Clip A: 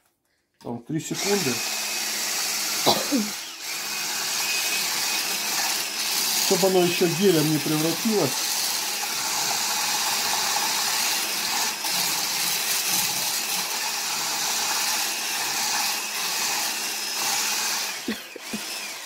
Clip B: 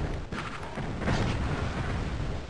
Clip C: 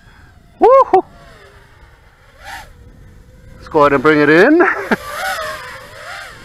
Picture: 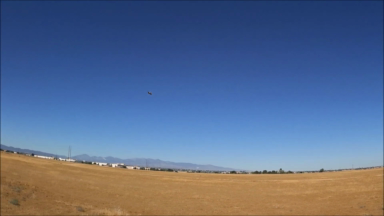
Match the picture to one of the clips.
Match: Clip C